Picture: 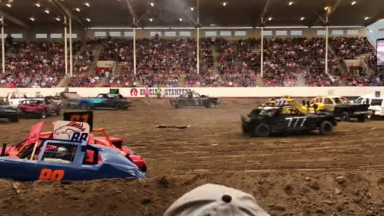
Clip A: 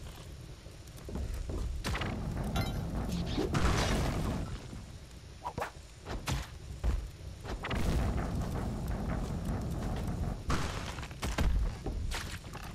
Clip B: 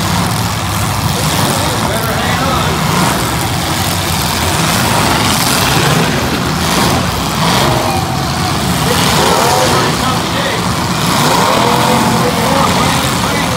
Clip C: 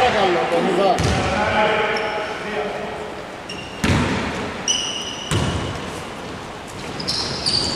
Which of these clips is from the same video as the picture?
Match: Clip B